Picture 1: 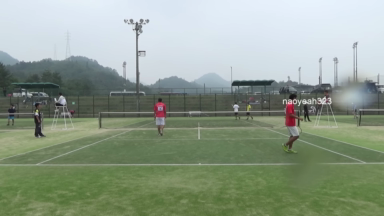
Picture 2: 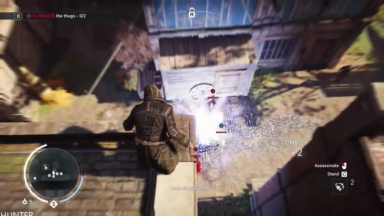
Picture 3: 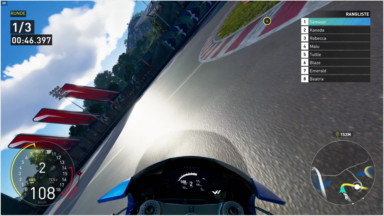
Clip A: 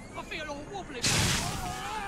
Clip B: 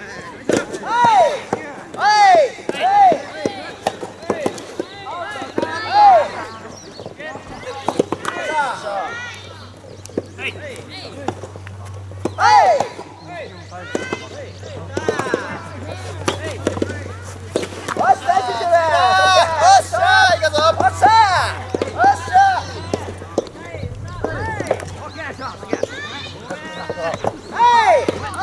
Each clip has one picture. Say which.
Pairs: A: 2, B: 1